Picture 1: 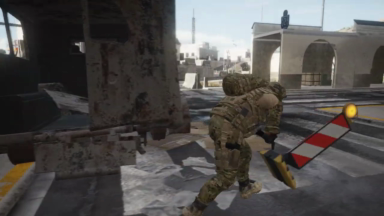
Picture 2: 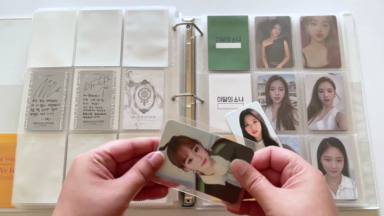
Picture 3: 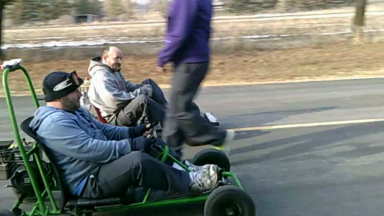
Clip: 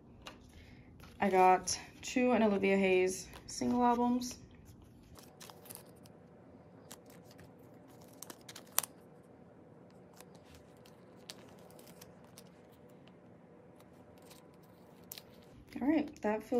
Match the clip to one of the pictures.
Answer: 2